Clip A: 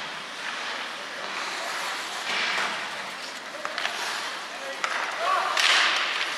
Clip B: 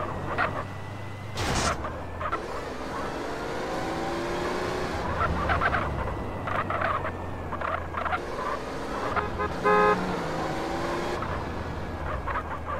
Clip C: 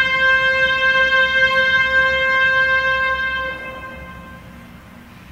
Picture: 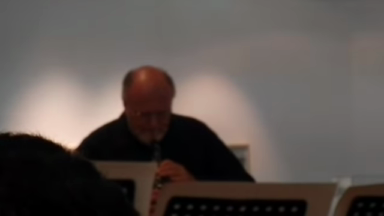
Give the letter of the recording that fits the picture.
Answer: C